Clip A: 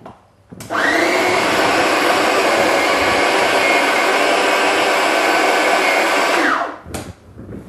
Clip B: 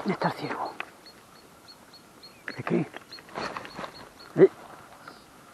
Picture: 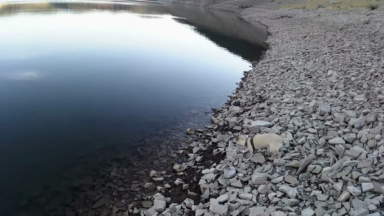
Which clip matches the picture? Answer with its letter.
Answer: B